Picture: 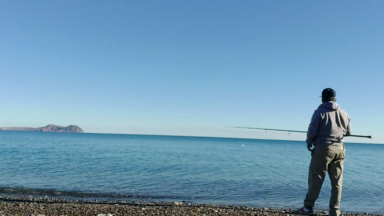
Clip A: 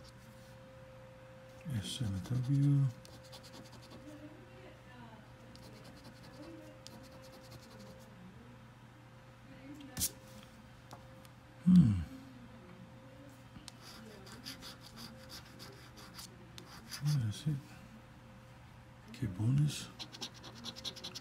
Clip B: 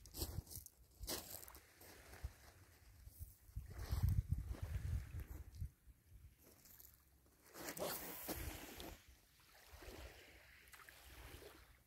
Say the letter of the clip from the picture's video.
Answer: B